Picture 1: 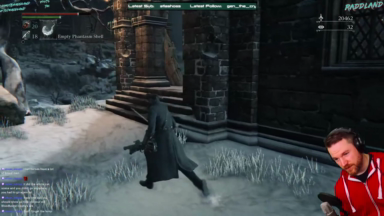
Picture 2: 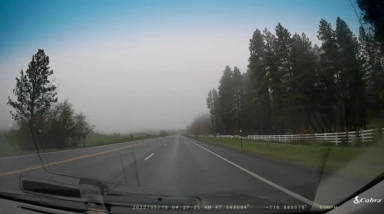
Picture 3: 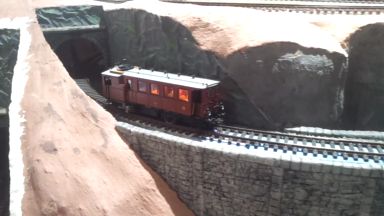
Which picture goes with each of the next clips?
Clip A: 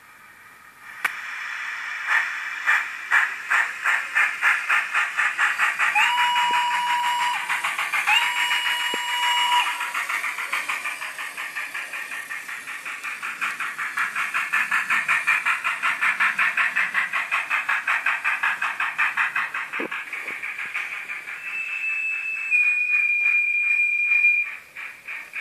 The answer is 3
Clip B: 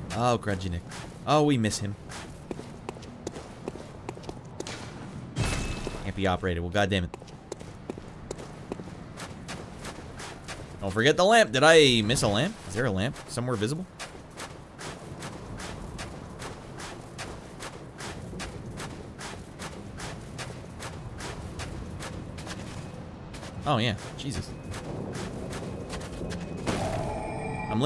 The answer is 1